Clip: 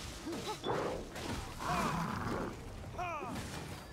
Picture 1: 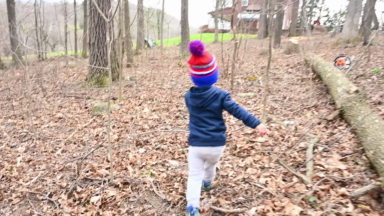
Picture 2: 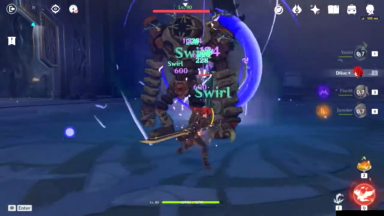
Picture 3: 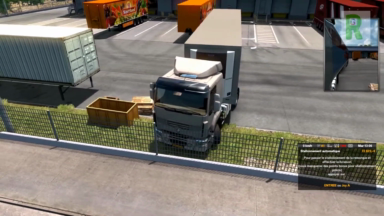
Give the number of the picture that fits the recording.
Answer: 2